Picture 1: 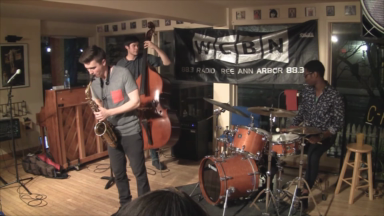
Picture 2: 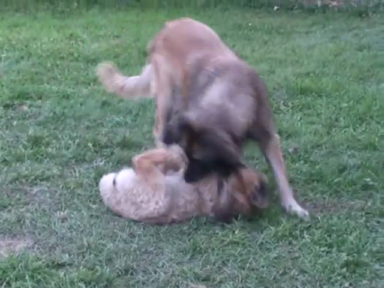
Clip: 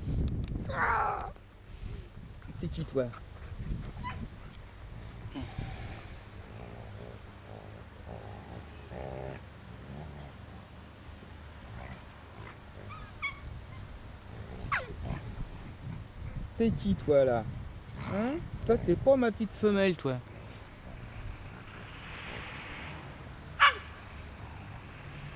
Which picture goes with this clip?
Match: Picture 2